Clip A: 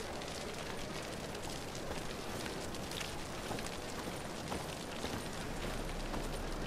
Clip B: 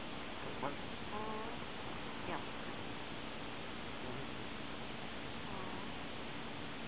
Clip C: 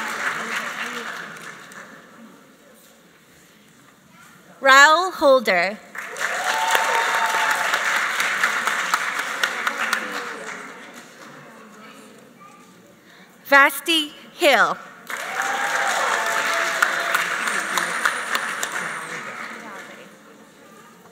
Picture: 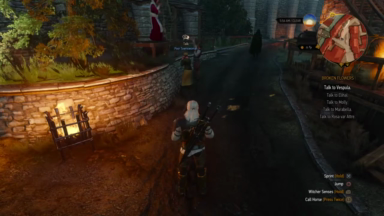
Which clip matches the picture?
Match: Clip A